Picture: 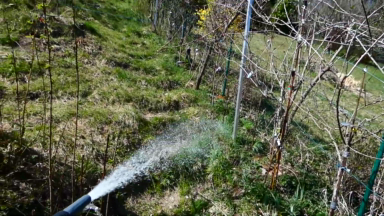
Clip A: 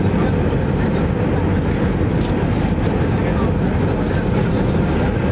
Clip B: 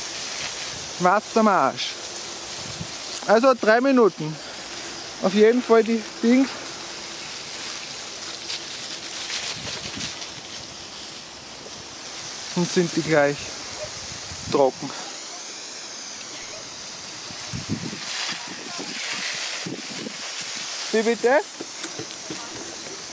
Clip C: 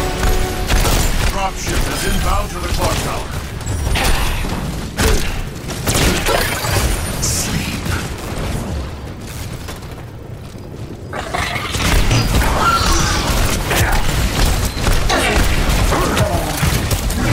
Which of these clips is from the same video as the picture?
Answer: B